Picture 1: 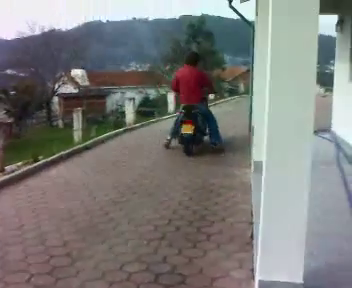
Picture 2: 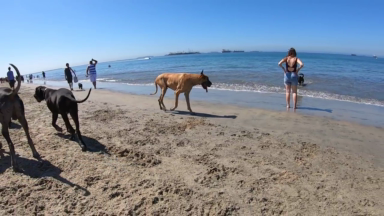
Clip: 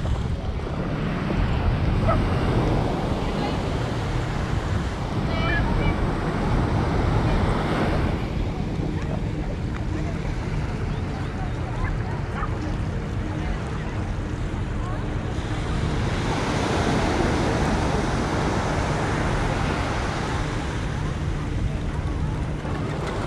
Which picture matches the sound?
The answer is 2